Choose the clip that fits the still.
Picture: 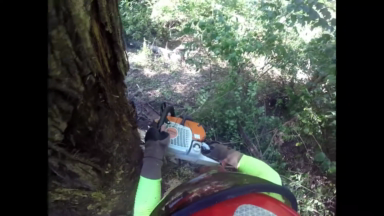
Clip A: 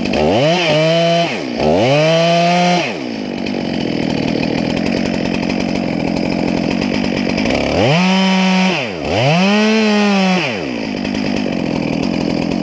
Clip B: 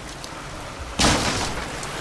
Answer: A